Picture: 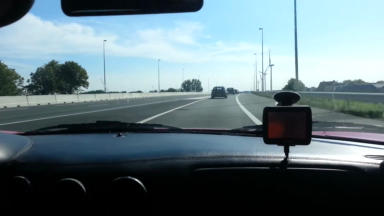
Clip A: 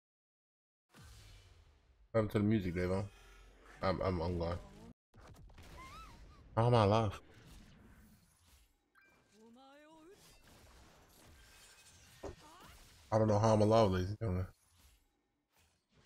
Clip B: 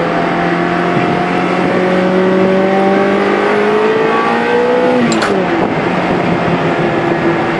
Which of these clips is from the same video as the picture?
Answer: B